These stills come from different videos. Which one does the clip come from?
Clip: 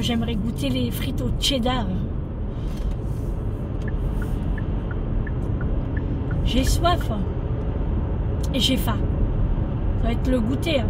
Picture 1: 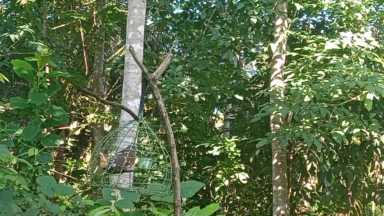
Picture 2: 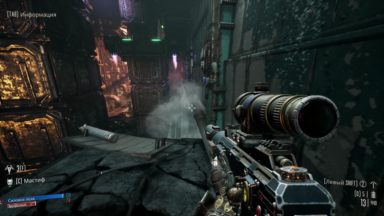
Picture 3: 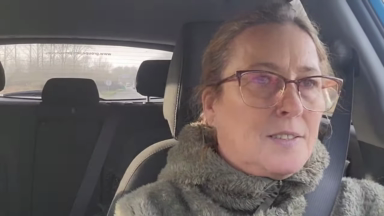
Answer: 3